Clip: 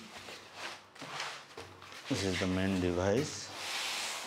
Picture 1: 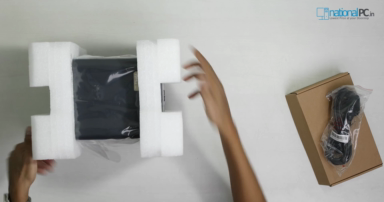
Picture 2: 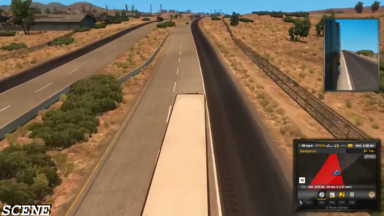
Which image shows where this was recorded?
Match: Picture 1